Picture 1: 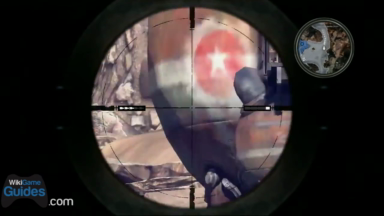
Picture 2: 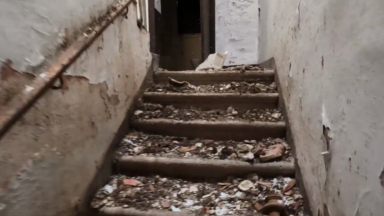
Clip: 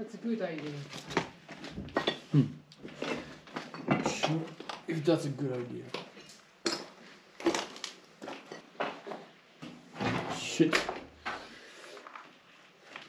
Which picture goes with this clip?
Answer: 2